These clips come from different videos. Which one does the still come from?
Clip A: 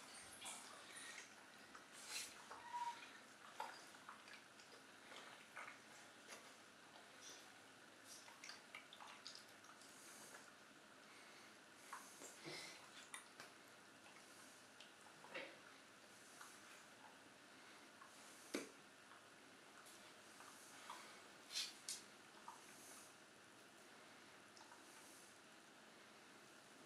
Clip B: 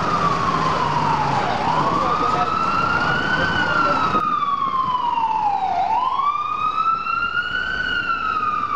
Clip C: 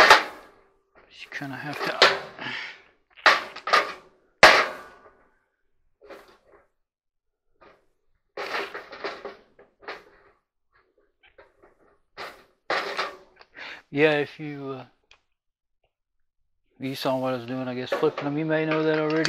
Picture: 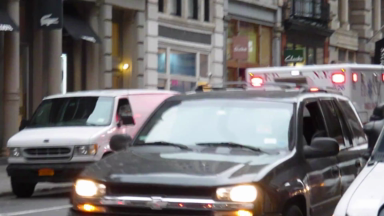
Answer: B